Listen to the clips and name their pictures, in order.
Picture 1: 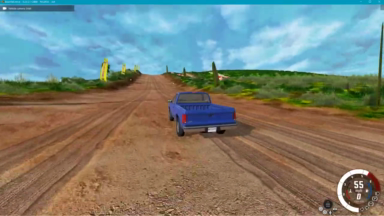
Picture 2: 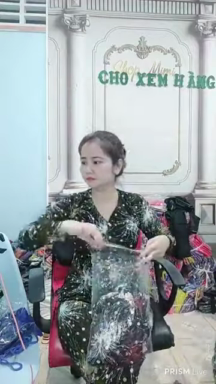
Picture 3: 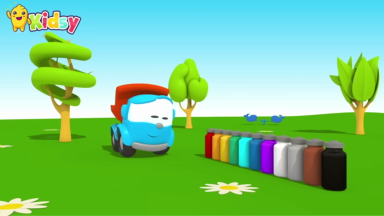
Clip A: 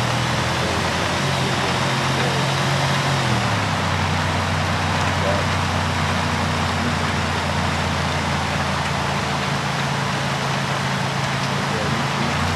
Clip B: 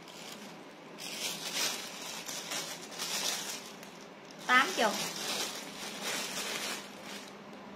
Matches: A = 1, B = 2